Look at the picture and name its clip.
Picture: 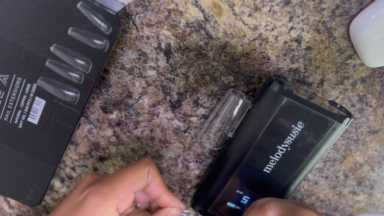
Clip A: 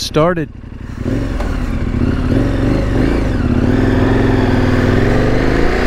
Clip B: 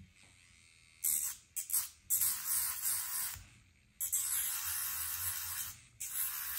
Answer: B